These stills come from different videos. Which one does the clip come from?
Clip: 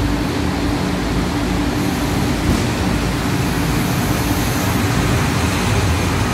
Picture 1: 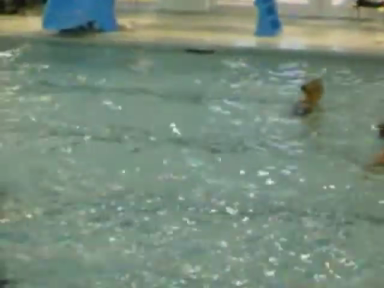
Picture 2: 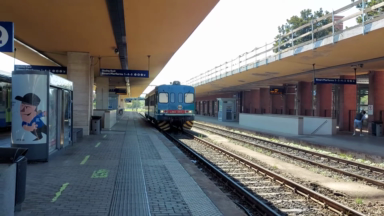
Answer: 2